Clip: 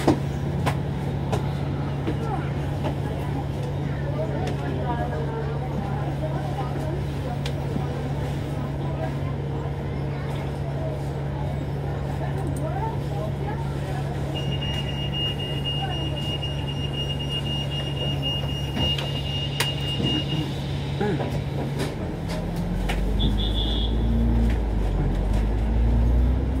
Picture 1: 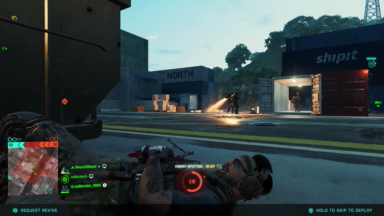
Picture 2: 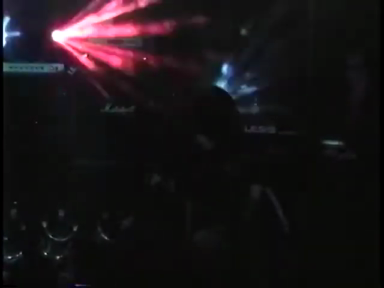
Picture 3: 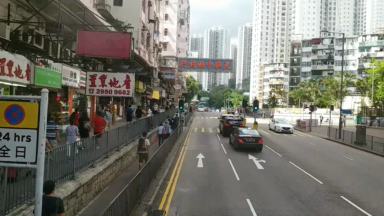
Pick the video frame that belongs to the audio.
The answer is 3